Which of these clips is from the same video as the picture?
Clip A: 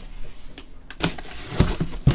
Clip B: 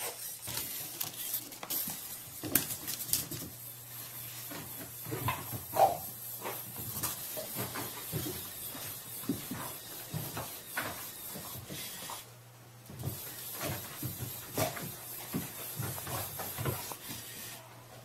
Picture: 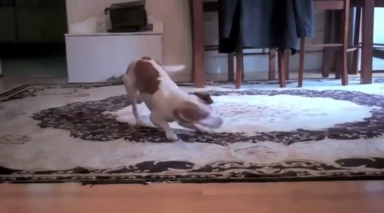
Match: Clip B